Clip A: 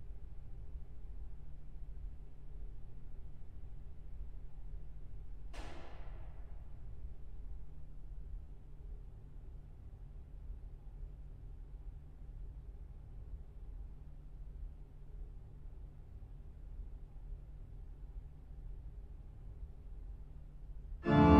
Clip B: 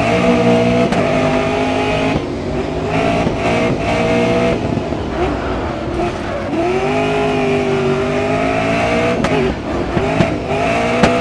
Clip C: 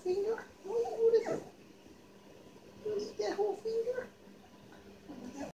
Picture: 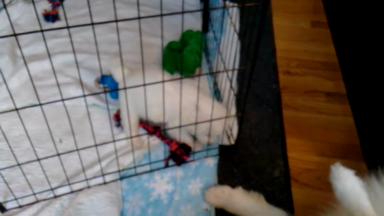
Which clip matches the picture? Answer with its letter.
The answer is C